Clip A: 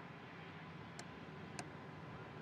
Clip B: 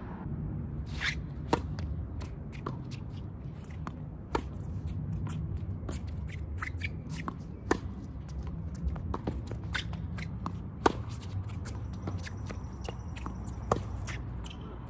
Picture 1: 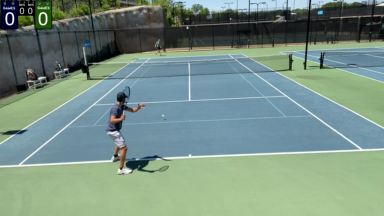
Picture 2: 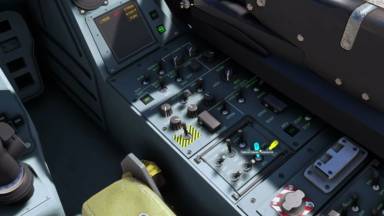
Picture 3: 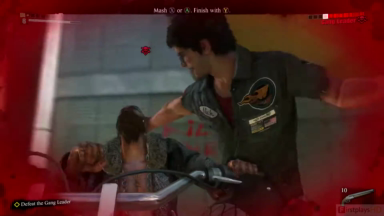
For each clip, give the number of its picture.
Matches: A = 2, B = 1